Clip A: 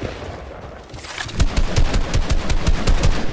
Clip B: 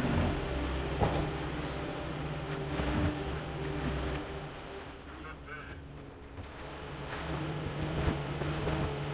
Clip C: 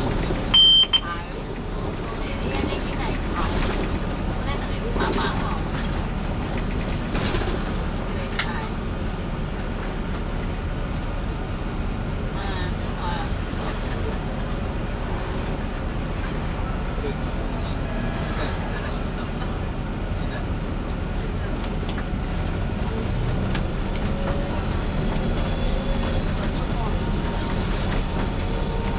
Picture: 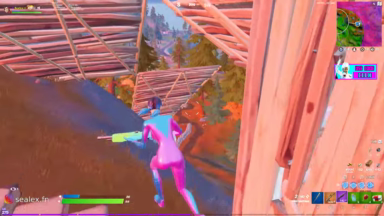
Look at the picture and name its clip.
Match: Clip A